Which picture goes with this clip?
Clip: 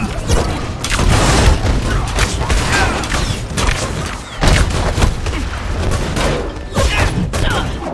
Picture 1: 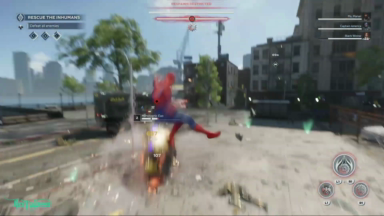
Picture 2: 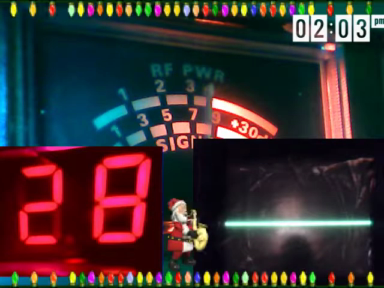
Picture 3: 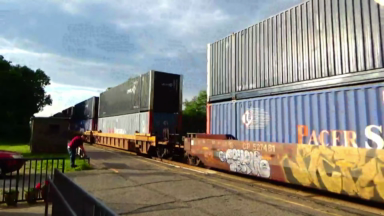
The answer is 1